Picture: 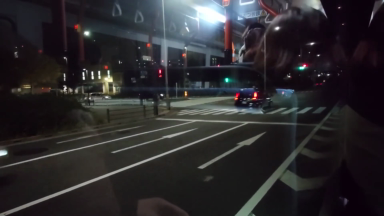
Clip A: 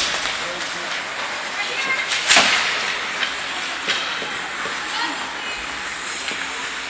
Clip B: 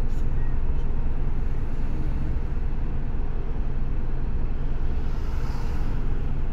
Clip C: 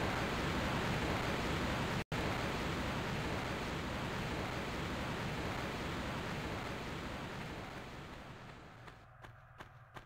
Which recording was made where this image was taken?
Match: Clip B